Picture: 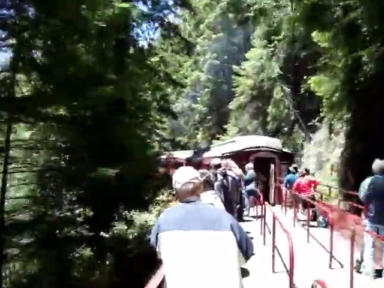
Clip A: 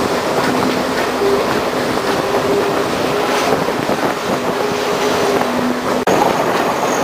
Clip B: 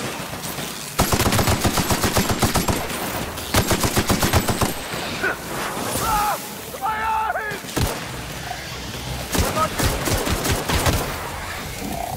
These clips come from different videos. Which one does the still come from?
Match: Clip A